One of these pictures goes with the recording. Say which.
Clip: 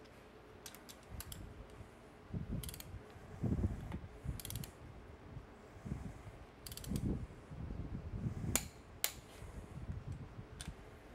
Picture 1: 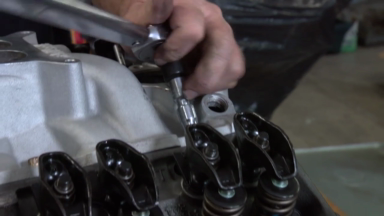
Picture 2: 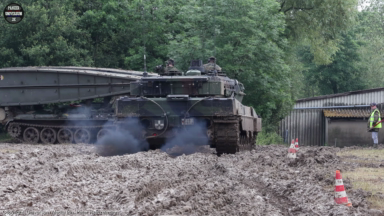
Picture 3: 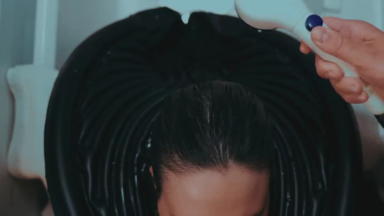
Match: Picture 1